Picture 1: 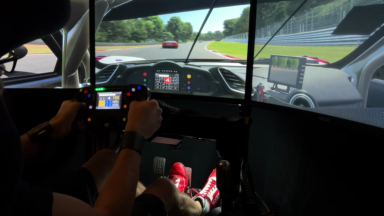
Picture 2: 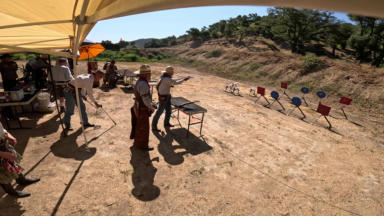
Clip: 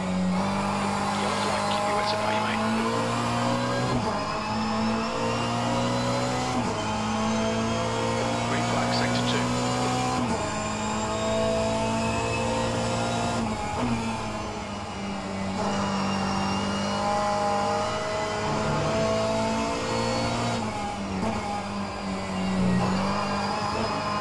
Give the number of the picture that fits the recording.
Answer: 1